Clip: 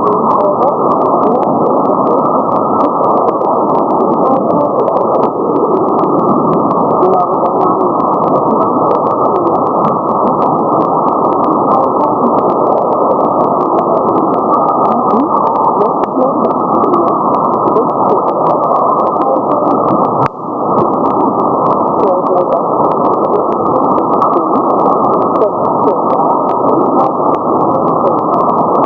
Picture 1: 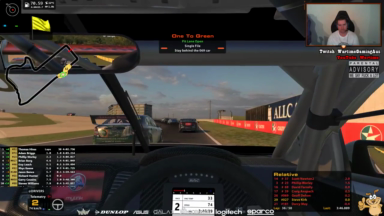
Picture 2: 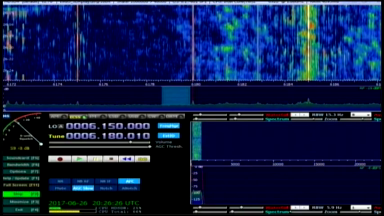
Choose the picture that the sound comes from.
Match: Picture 2